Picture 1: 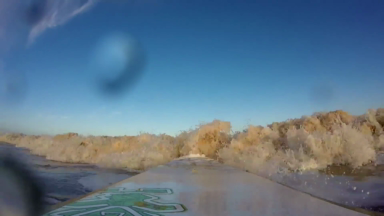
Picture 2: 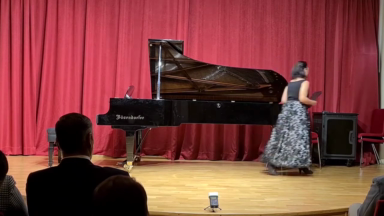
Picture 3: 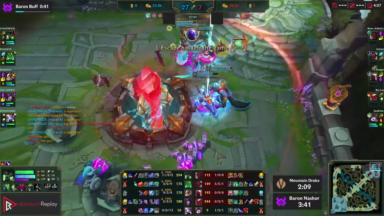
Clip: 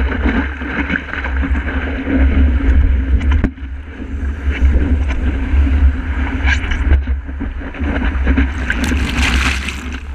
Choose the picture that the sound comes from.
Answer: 1